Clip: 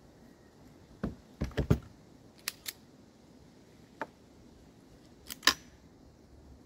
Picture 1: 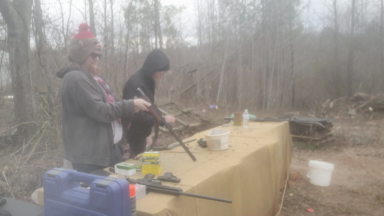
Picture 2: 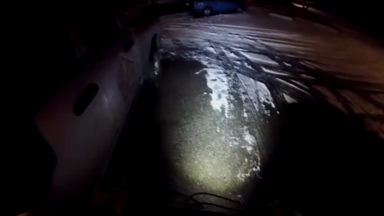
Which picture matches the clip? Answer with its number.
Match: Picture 1